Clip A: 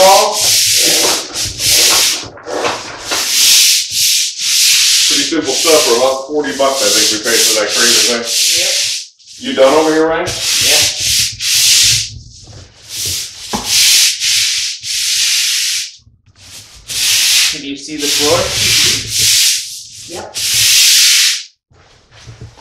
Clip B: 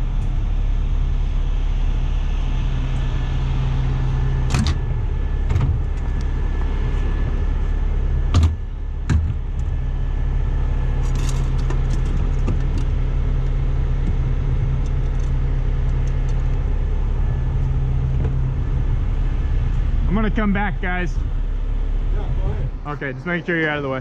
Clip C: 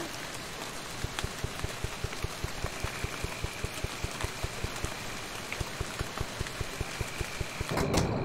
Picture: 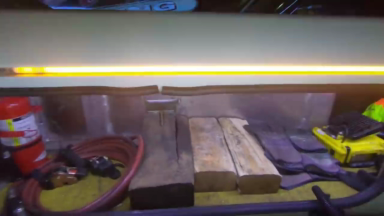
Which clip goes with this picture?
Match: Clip B